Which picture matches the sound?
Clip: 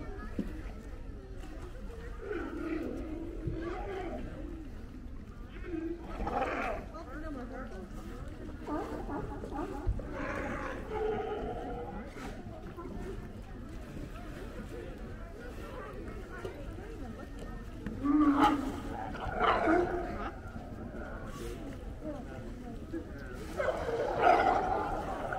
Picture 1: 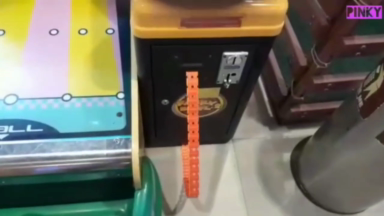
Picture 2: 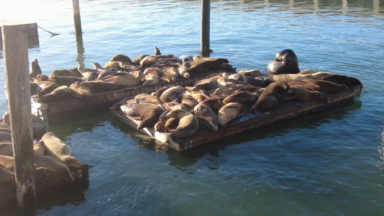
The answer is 2